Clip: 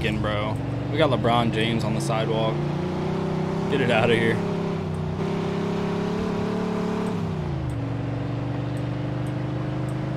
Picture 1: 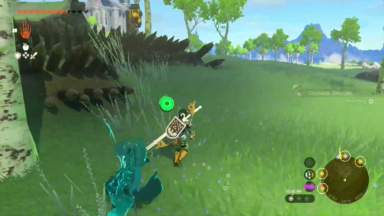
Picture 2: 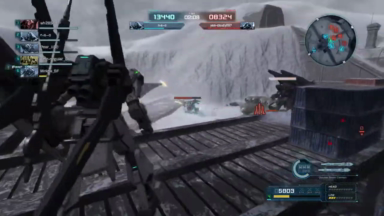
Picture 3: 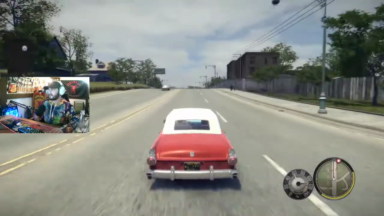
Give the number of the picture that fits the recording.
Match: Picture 3